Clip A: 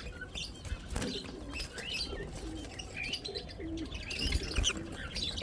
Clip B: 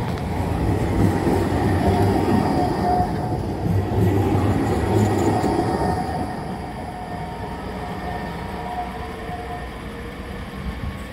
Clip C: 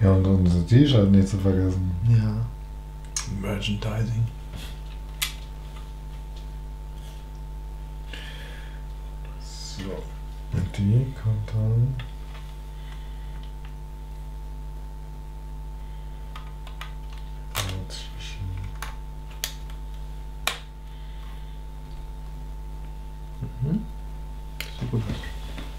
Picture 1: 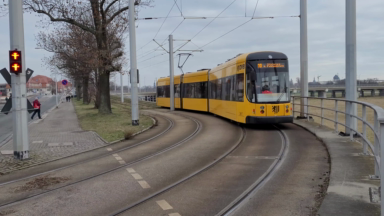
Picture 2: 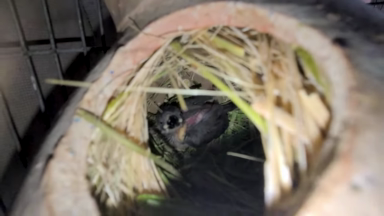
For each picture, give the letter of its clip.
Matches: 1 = B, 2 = A